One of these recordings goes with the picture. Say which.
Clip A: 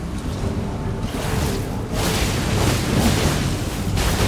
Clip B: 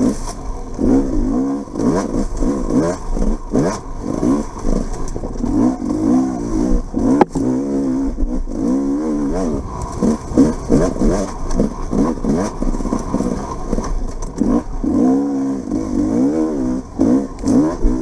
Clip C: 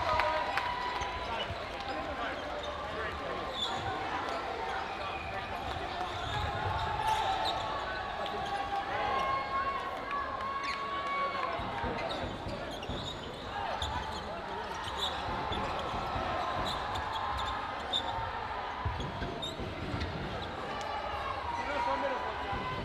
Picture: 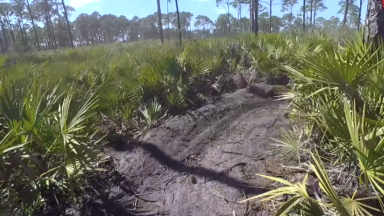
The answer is B